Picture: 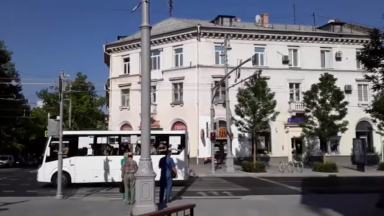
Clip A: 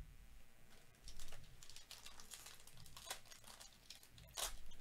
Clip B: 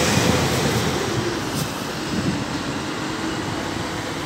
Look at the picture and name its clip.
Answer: B